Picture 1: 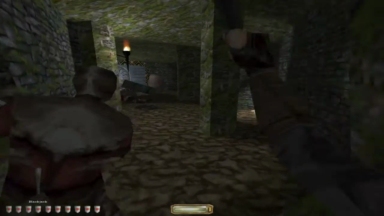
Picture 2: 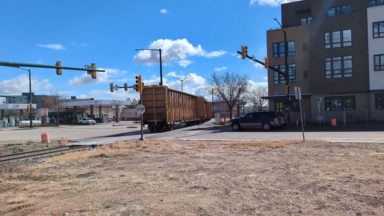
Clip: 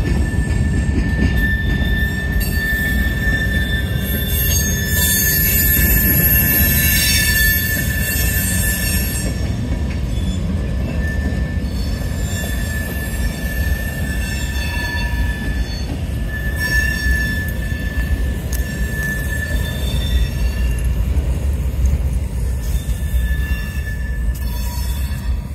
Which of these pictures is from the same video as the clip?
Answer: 2